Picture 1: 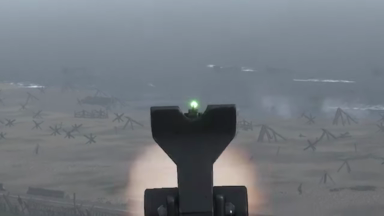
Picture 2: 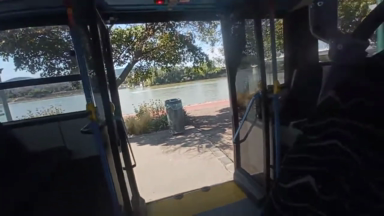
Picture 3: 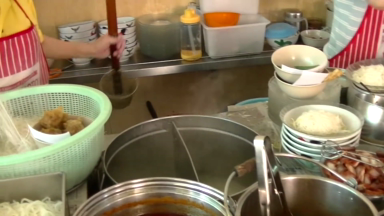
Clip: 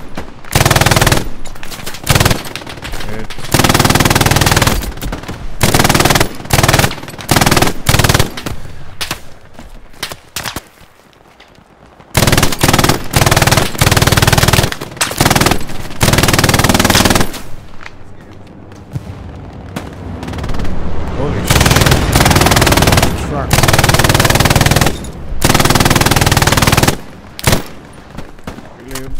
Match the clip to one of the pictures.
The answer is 1